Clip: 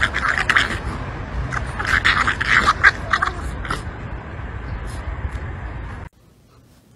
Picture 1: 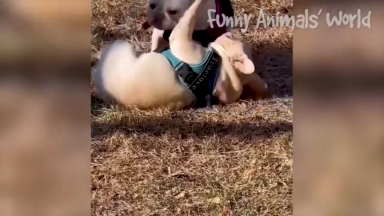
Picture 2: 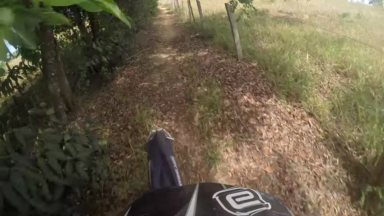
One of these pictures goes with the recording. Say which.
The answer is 1